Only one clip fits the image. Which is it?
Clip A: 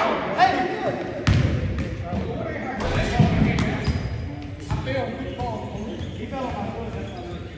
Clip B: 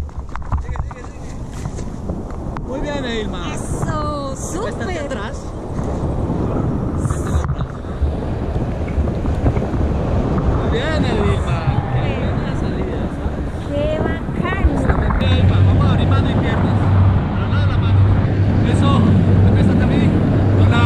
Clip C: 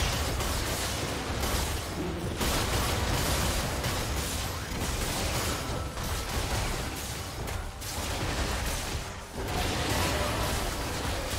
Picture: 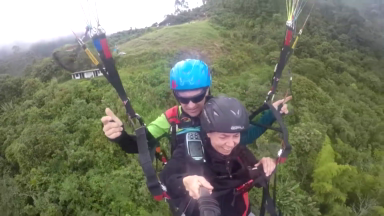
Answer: B